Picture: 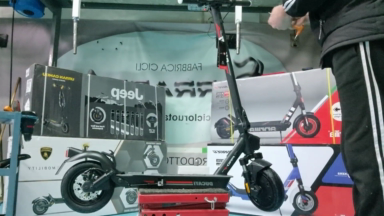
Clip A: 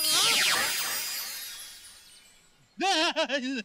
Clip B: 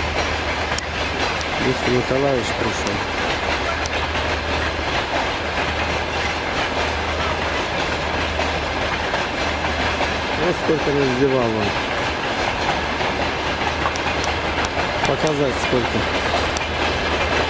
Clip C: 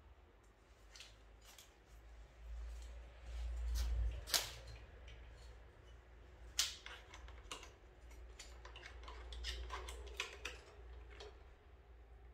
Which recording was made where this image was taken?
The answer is C